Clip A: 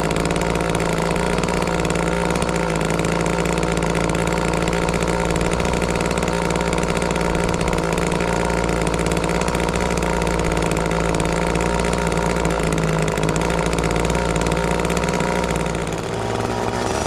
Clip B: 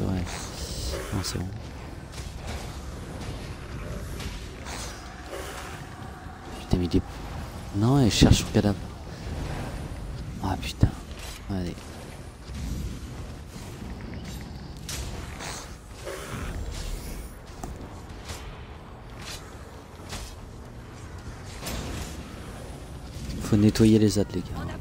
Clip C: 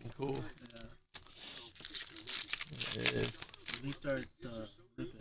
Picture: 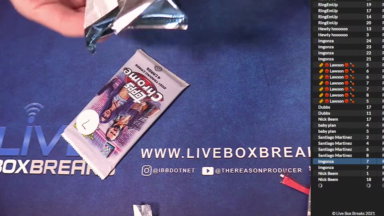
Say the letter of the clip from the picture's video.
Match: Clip C